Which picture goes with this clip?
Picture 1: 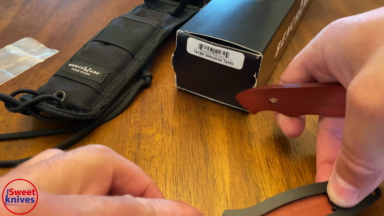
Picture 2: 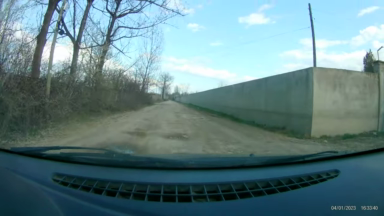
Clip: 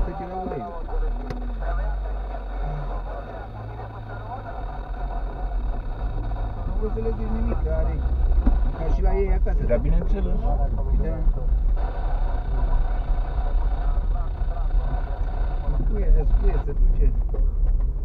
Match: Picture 2